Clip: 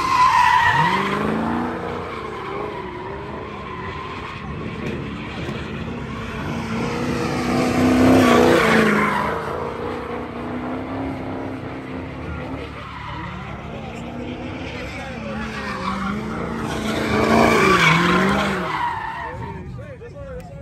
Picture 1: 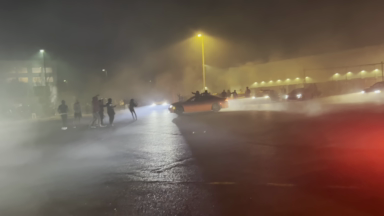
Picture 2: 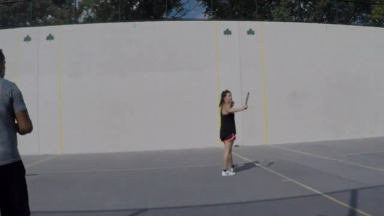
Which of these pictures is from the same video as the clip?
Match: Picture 1